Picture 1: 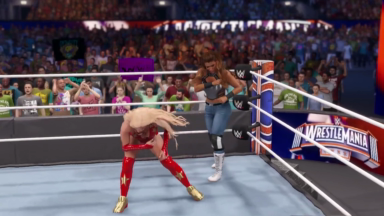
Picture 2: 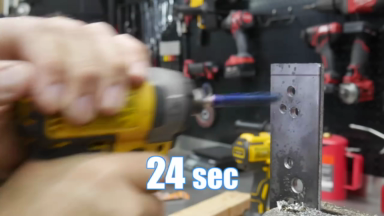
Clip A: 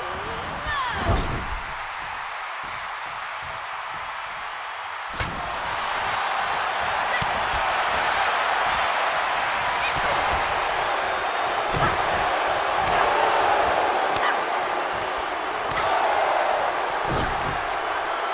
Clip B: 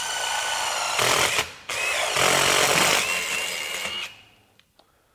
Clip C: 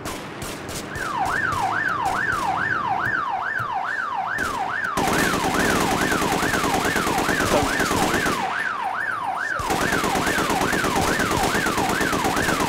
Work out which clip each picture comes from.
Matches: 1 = A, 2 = B